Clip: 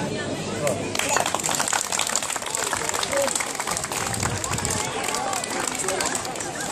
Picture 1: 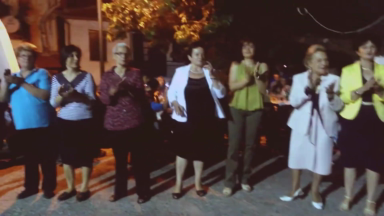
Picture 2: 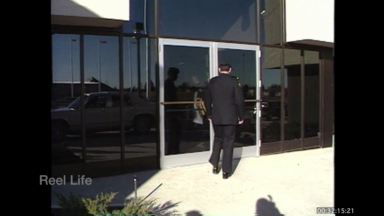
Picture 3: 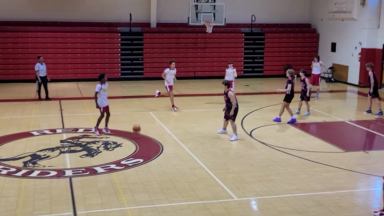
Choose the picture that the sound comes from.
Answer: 1